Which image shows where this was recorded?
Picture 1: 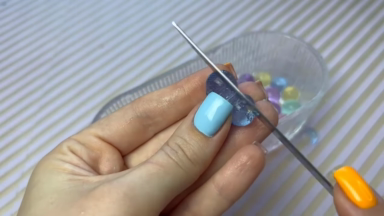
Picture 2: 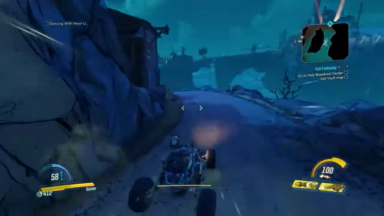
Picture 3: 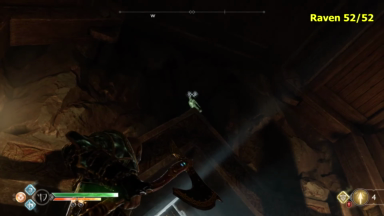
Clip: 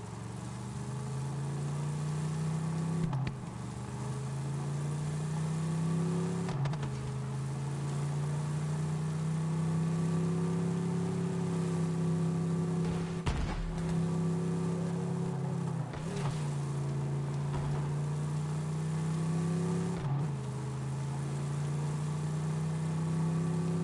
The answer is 2